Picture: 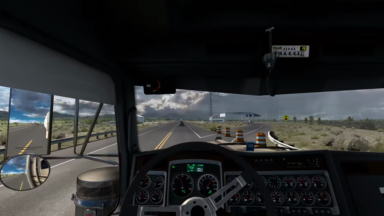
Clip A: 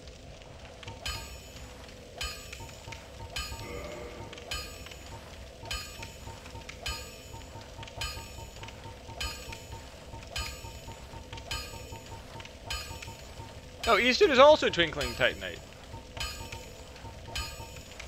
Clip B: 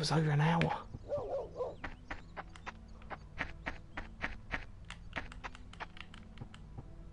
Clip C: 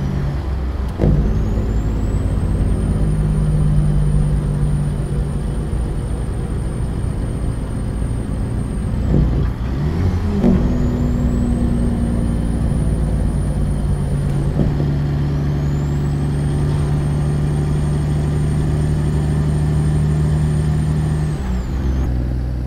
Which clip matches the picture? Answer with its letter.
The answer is C